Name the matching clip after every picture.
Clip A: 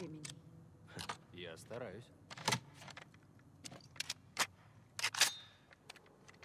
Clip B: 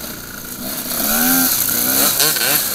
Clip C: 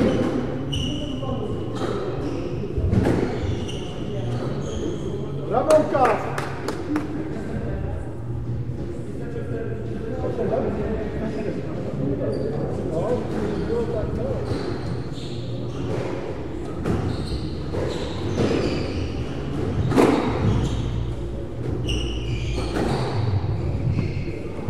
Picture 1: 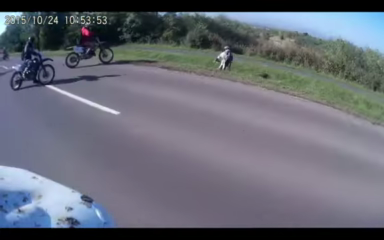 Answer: B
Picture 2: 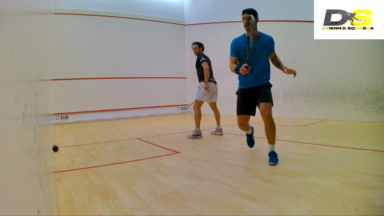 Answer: C